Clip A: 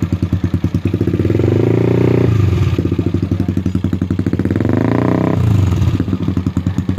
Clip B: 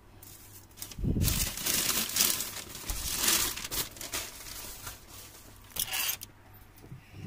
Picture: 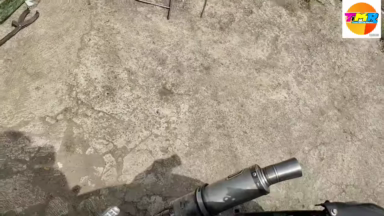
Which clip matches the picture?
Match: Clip A